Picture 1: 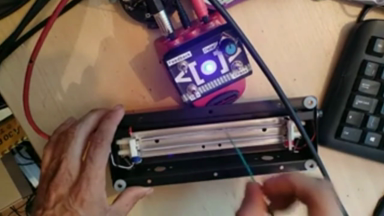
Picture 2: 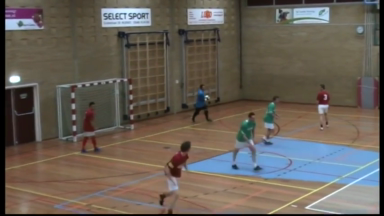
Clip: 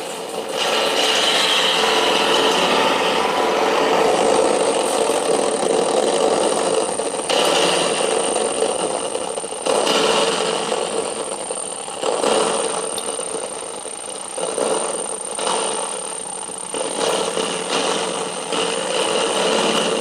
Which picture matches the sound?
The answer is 1